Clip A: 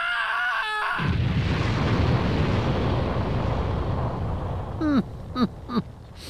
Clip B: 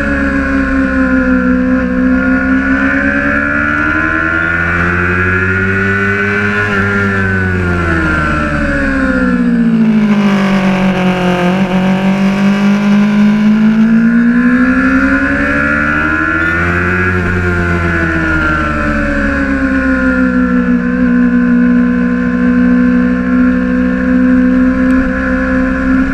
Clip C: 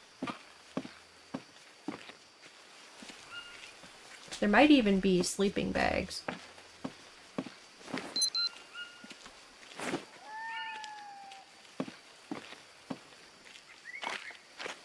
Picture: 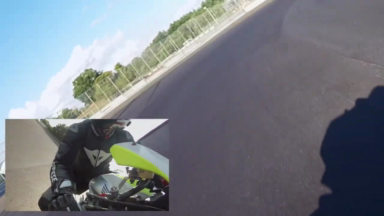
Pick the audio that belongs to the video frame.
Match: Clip B